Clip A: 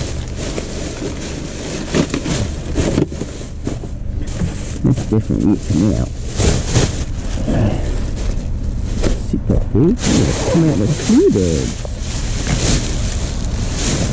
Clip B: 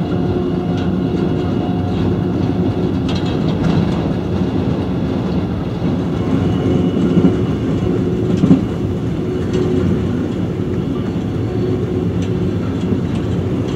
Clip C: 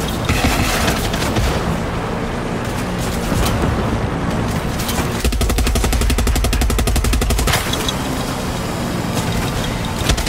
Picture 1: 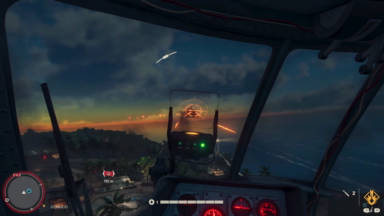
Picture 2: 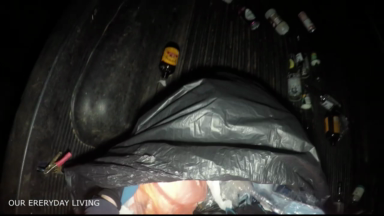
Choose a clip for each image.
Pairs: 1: C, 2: A